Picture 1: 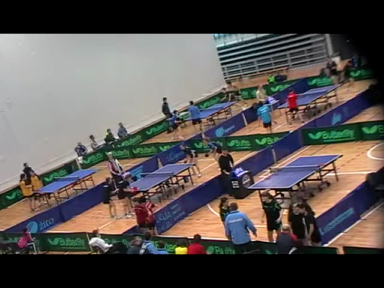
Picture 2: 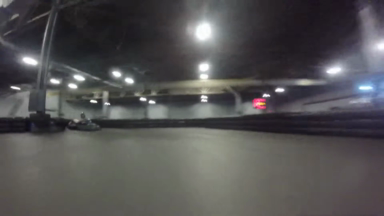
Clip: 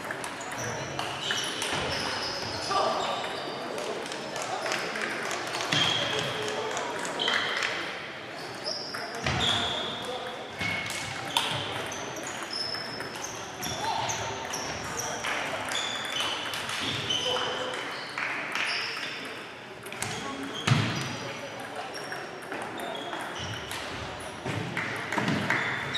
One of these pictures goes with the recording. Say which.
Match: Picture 1